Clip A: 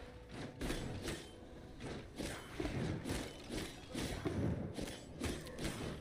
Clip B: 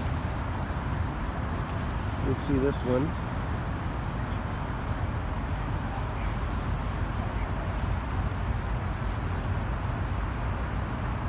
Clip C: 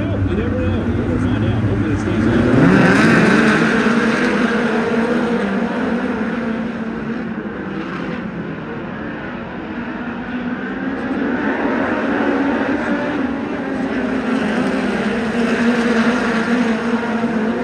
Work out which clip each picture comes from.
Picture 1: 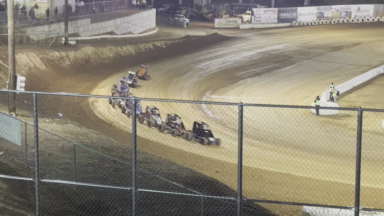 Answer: C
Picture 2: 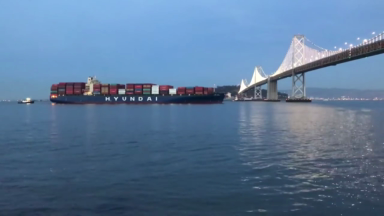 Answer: B